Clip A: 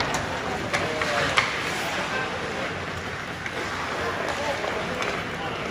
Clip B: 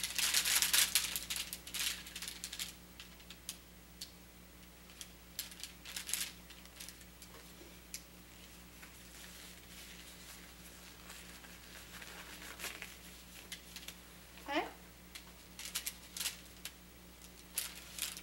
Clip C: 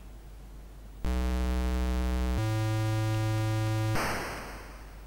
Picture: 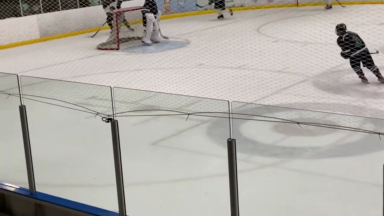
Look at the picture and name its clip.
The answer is A